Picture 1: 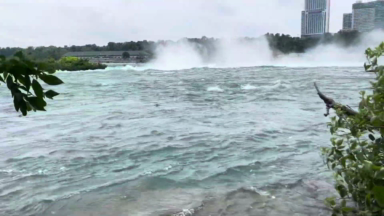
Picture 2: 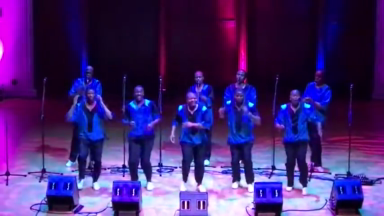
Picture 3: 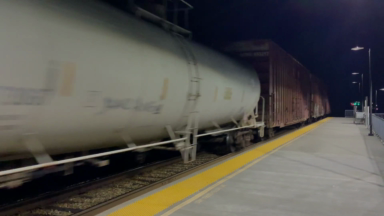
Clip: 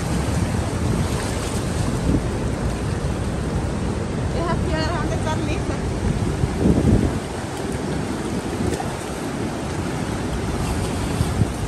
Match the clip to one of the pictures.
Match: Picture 1